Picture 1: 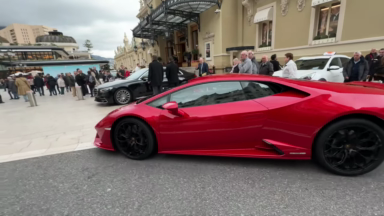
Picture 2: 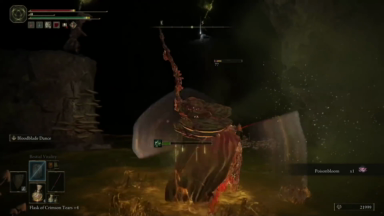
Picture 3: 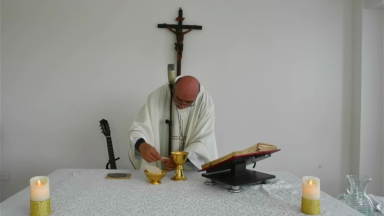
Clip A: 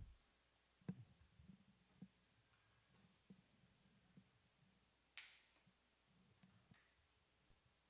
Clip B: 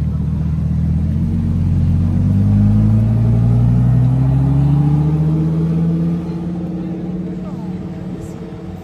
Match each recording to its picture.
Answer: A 3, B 1